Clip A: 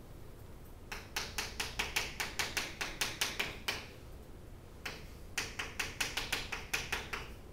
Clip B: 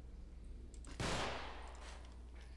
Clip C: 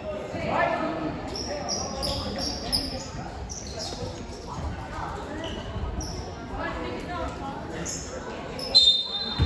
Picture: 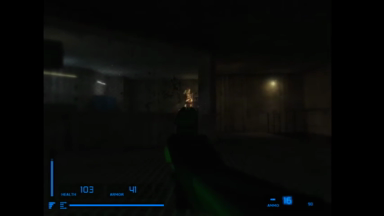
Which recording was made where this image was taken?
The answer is B